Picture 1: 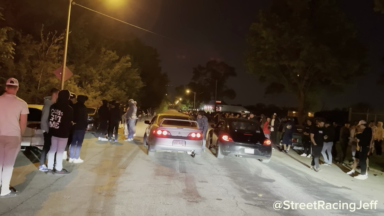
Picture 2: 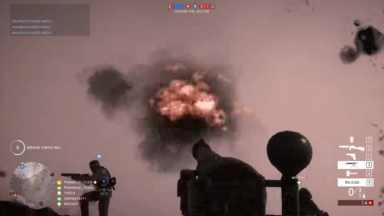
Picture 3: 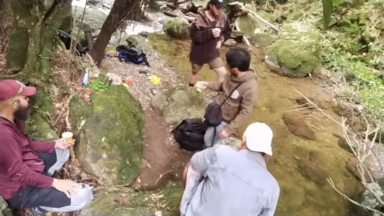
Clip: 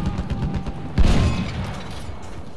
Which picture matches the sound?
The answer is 2